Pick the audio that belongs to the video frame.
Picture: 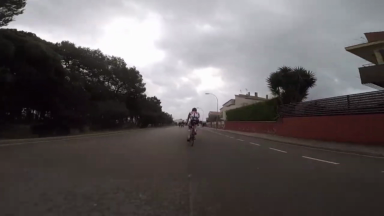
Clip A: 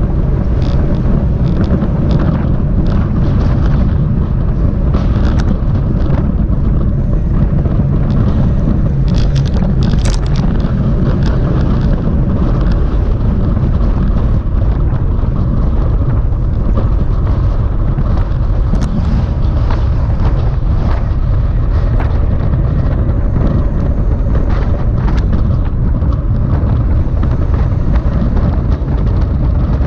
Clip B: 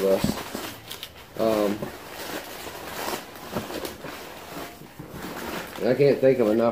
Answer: A